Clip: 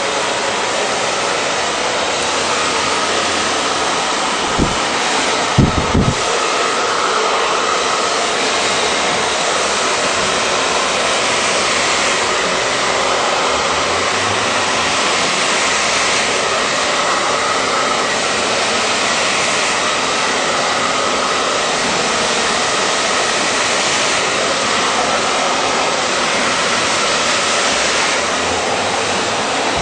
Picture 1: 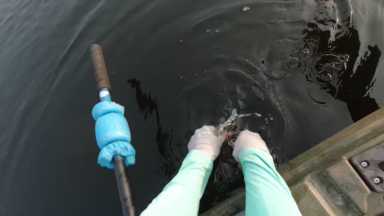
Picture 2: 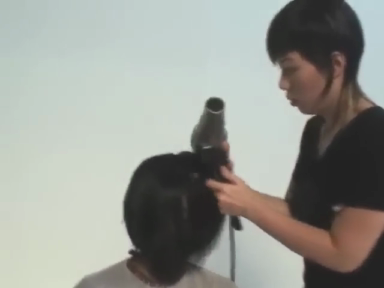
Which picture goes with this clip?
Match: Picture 2